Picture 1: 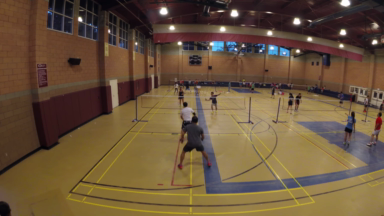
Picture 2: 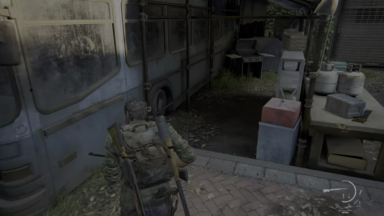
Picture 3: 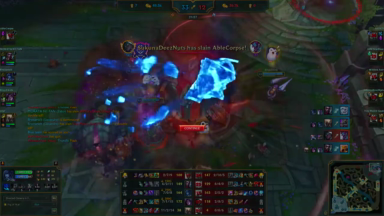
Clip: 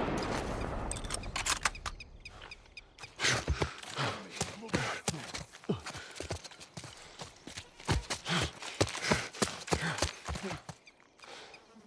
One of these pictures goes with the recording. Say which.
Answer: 2